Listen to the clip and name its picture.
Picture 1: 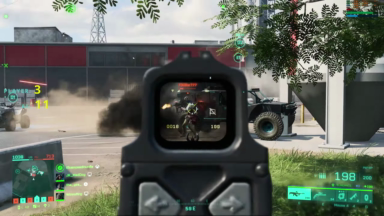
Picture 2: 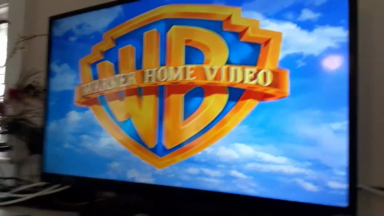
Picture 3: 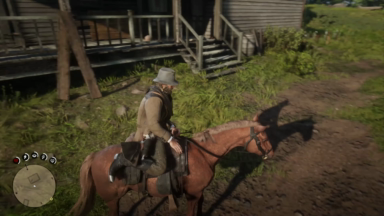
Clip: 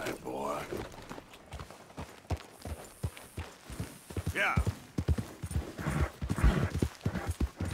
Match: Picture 3